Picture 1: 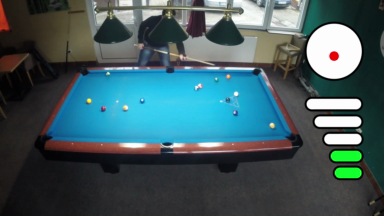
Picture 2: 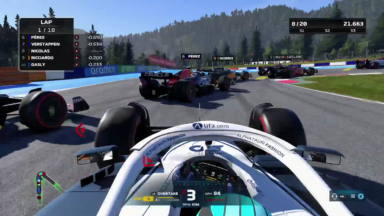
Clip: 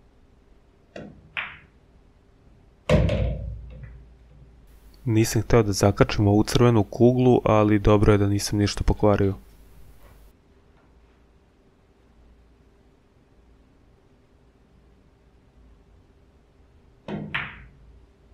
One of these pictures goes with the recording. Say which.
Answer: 1